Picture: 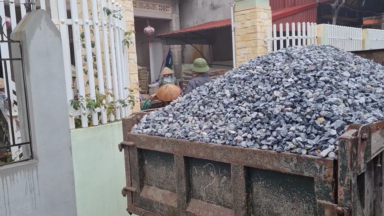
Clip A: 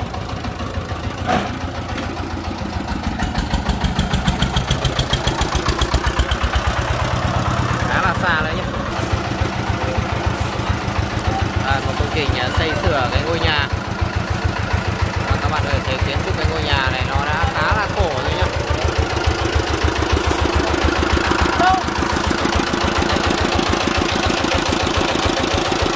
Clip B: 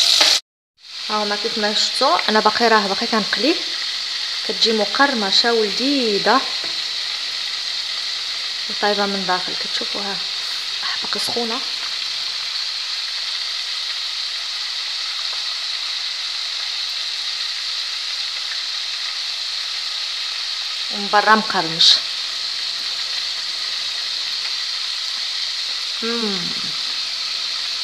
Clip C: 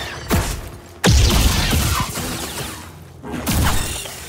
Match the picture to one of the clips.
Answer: A